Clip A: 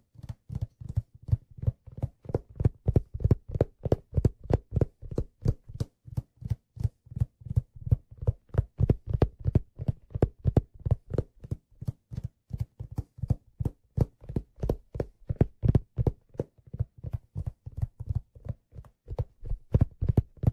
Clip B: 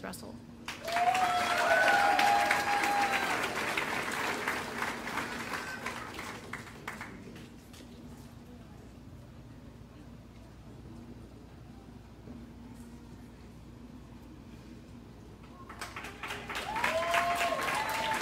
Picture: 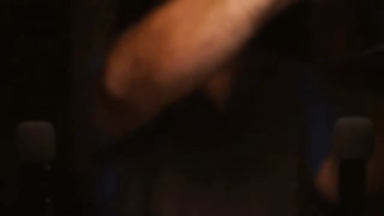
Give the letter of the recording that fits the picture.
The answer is A